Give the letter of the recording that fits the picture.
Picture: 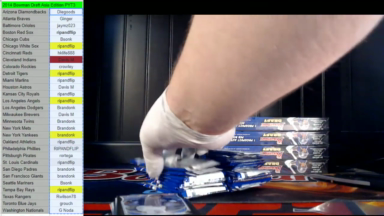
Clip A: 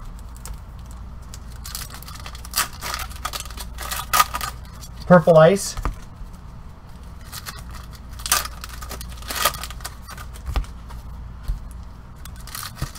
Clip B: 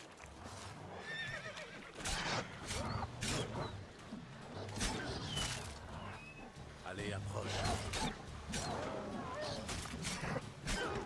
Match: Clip A